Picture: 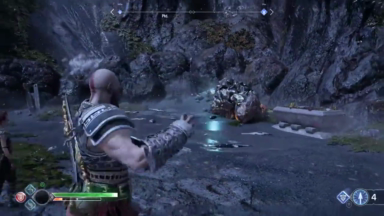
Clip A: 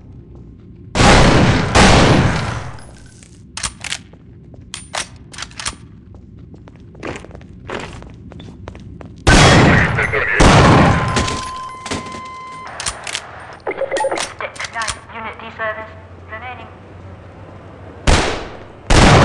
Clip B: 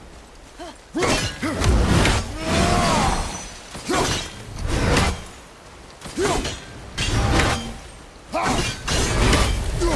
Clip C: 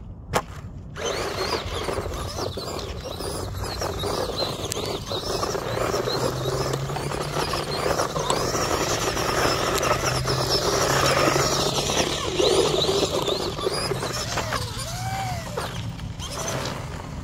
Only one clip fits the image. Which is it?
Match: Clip B